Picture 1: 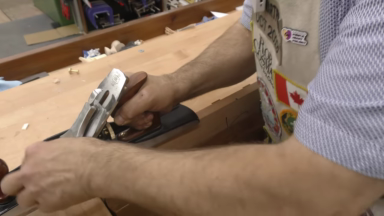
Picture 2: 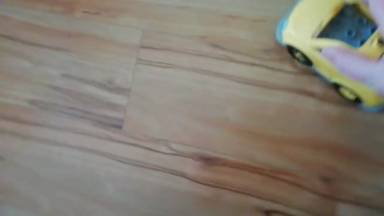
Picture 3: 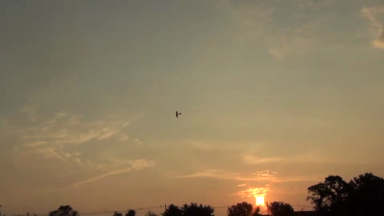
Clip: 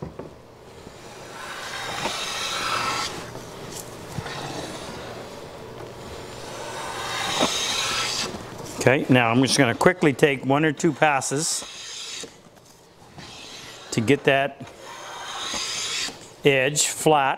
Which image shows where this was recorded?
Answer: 1